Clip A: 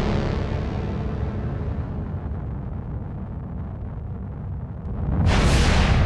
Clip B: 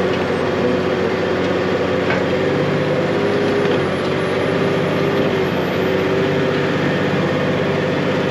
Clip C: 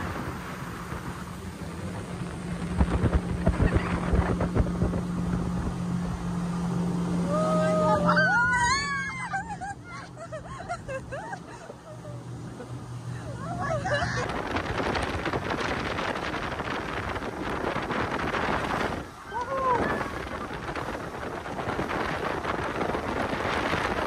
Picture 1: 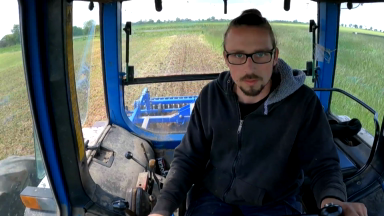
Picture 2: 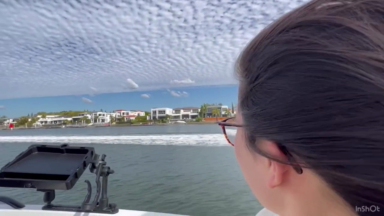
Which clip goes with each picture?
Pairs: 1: B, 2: C